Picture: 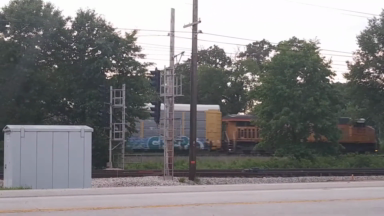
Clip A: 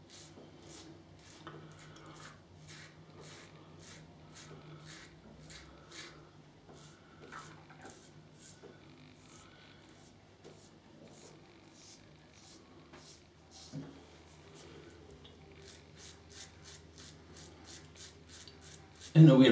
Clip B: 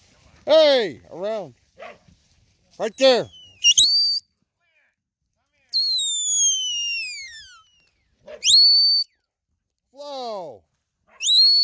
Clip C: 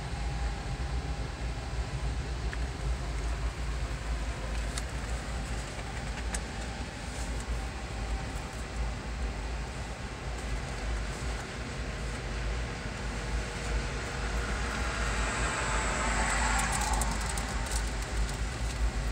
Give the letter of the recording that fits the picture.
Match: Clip C